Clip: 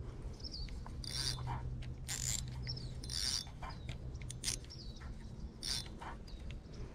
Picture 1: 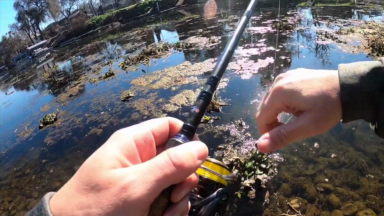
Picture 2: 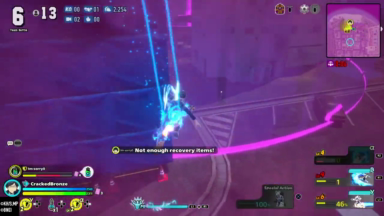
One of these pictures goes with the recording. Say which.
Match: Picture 1